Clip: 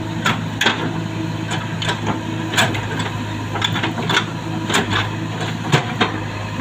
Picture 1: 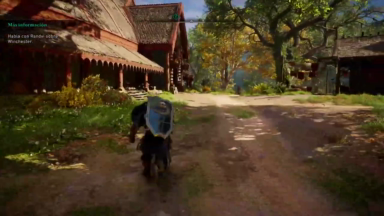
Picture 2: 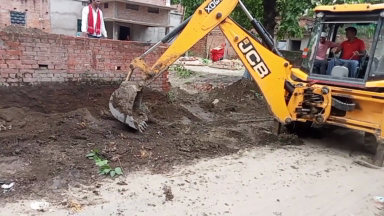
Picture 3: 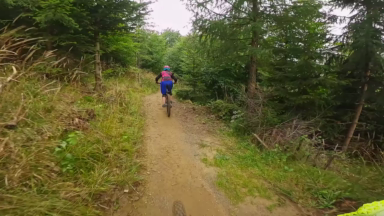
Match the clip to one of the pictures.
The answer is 2